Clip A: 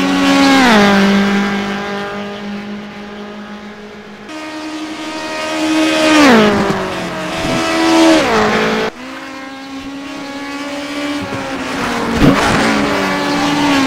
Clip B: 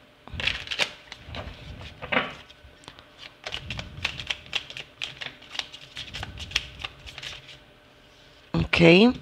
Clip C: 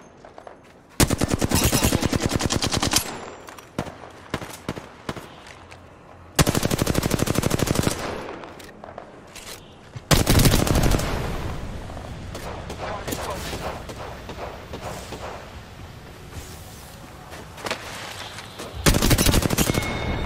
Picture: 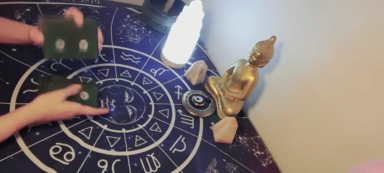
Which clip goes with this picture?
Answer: B